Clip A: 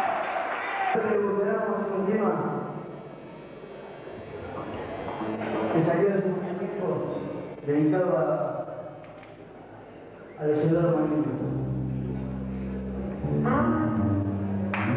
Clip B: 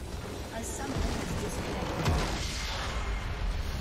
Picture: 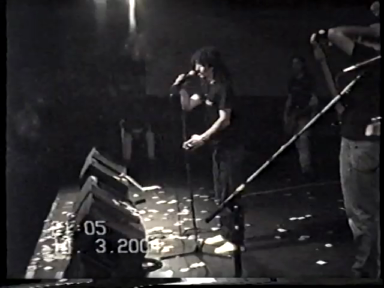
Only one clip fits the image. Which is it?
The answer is A